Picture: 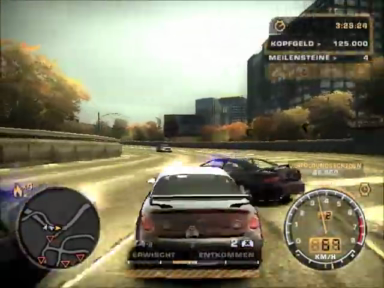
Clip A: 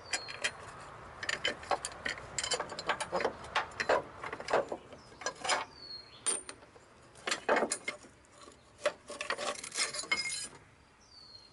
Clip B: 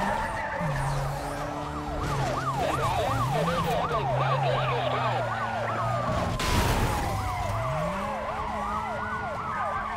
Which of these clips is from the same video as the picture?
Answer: B